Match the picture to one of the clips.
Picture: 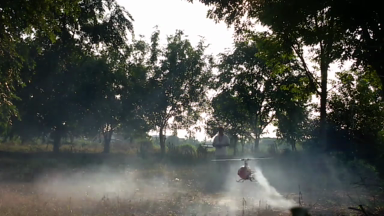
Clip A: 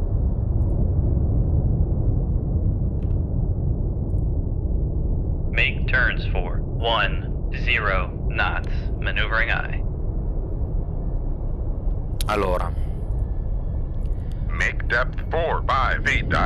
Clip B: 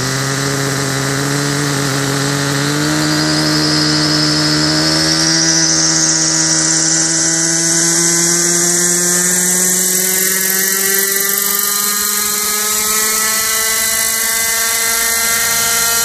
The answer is B